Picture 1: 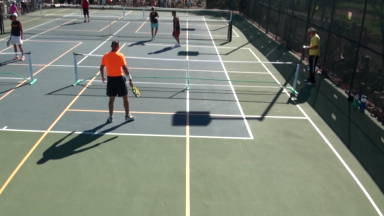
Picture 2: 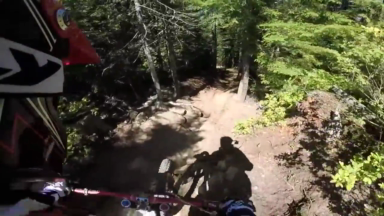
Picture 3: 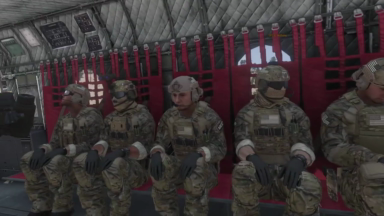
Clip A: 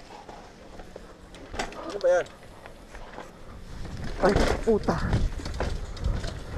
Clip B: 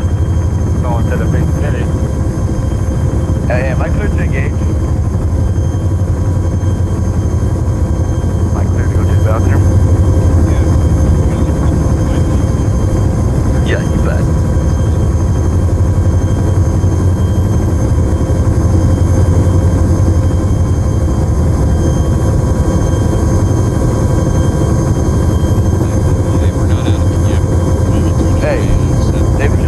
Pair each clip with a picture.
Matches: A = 2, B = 3